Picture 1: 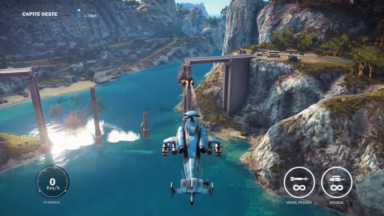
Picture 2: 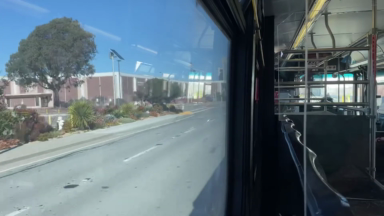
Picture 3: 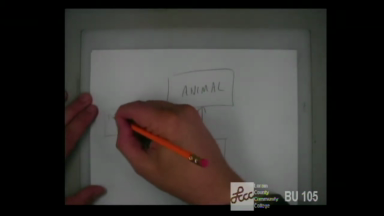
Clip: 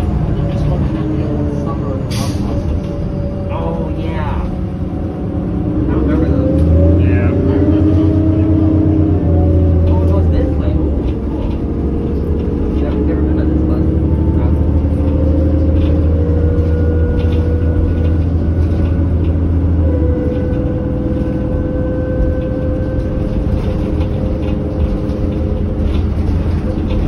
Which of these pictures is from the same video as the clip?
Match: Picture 2